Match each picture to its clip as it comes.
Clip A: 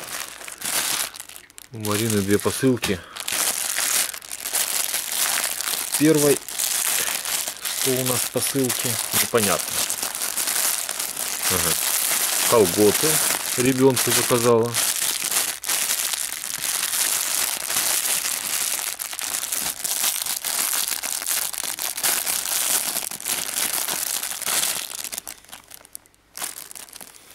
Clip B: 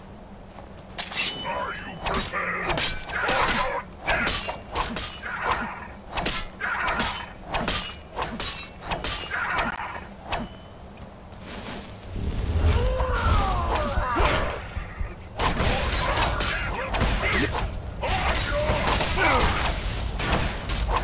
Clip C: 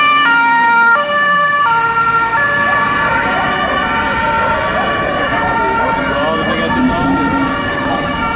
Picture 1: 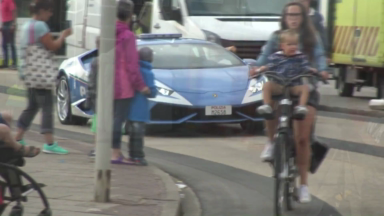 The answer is C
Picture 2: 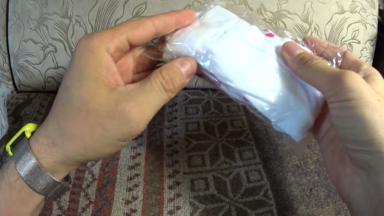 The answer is A